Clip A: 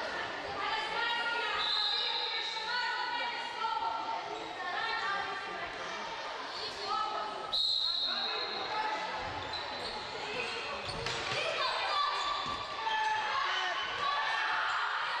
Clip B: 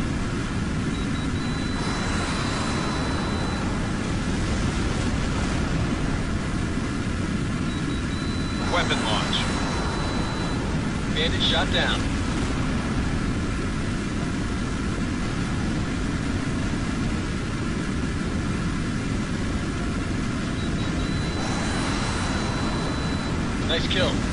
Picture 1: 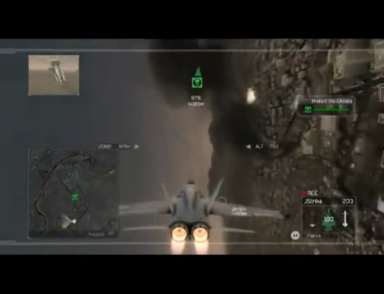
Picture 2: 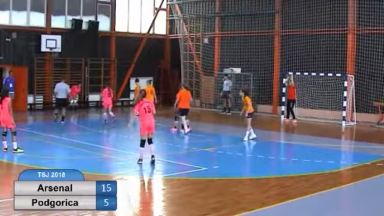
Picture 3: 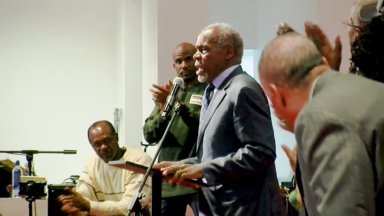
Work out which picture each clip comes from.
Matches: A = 2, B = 1